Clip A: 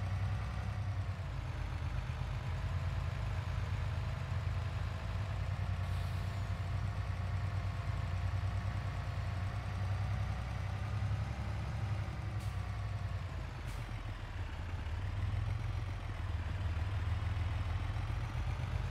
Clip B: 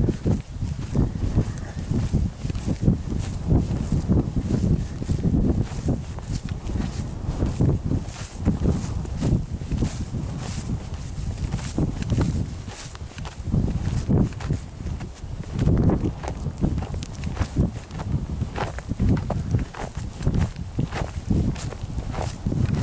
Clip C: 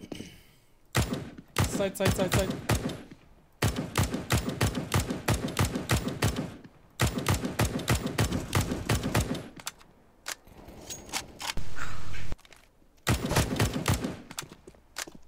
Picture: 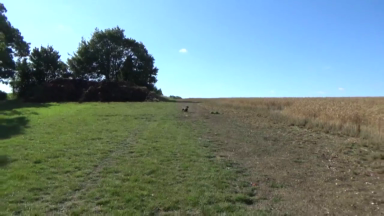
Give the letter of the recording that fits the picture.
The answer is B